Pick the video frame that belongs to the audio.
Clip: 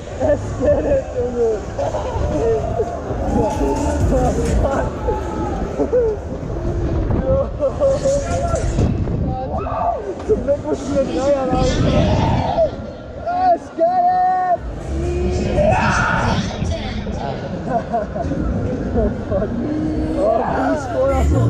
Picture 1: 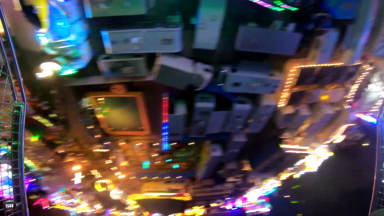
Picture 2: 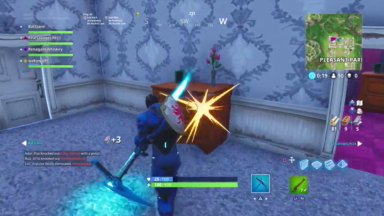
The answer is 1